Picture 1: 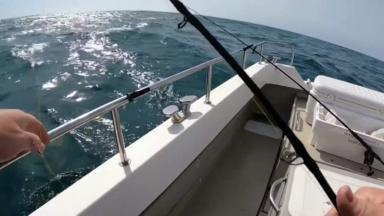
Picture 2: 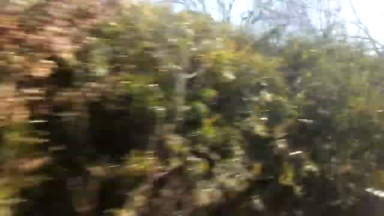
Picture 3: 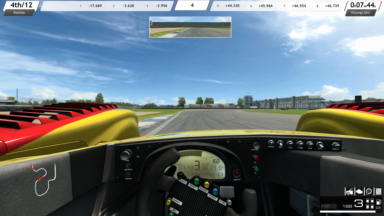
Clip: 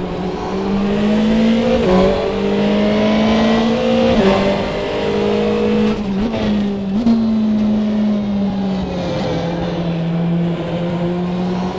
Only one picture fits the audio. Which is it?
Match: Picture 3